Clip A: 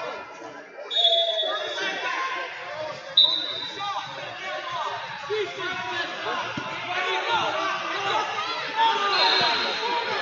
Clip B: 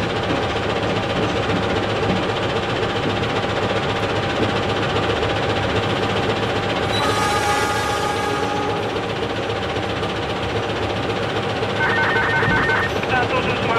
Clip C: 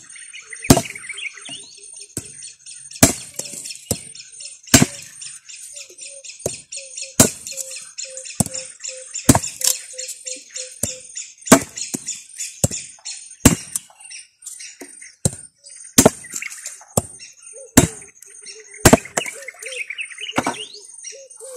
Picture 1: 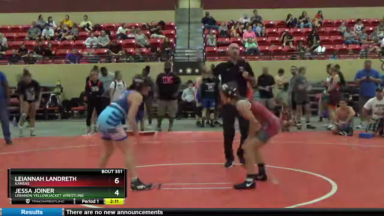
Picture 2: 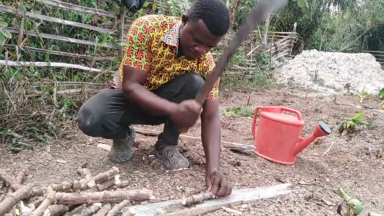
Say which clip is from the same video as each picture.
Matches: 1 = A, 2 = C